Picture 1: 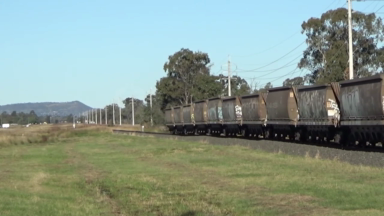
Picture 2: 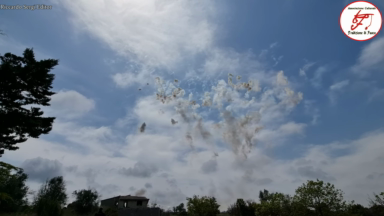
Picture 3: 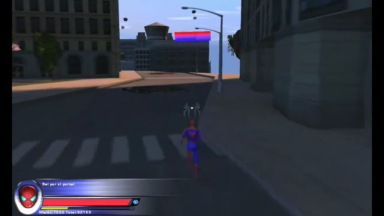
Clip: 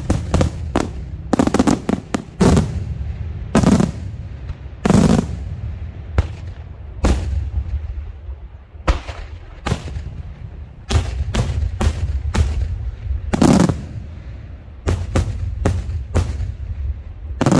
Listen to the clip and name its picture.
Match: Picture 2